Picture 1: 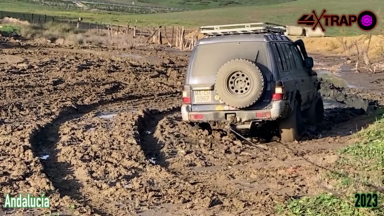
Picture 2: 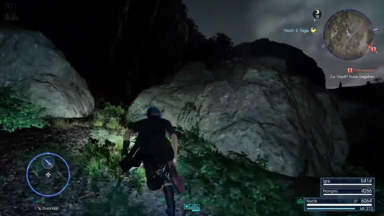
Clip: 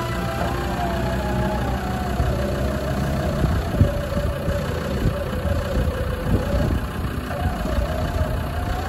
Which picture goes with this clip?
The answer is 1